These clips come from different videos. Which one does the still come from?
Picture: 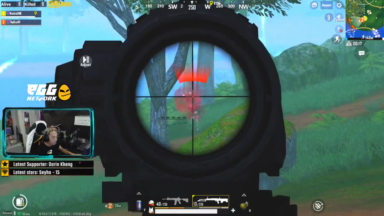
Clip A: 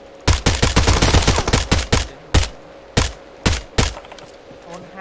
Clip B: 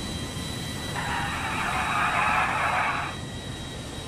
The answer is A